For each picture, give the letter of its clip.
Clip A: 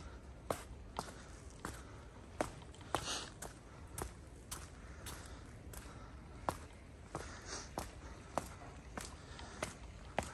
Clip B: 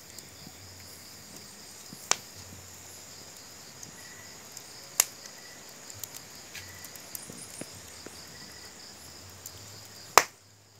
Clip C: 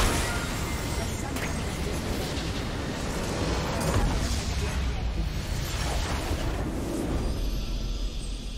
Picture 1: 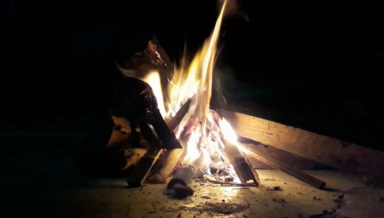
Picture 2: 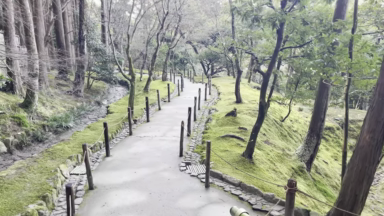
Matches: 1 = B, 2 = A